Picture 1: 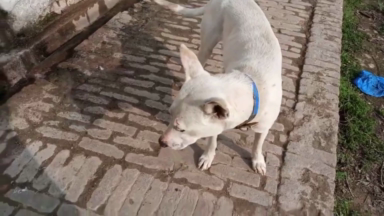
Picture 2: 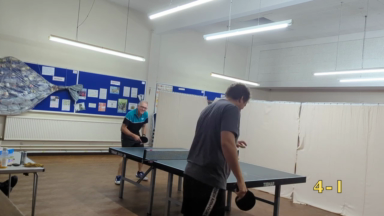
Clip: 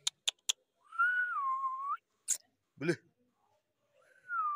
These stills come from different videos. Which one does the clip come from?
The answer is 1